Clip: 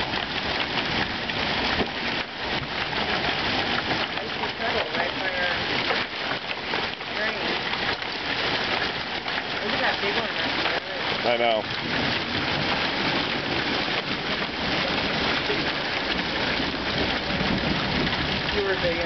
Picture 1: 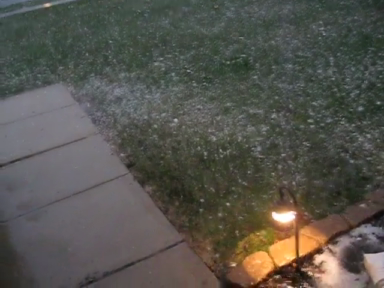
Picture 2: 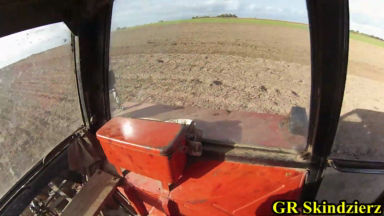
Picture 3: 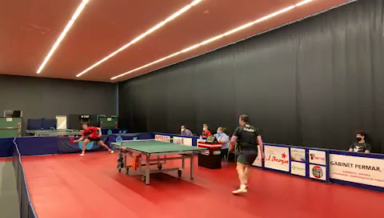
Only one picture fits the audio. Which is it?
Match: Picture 1